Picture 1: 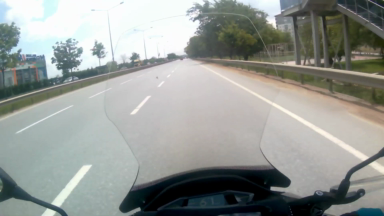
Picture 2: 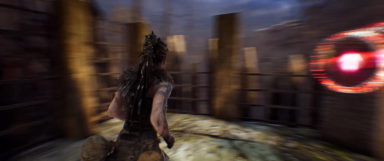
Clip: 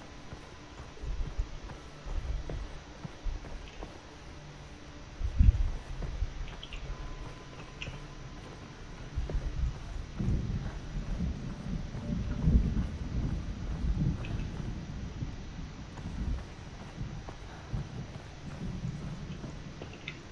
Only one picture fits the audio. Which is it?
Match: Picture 2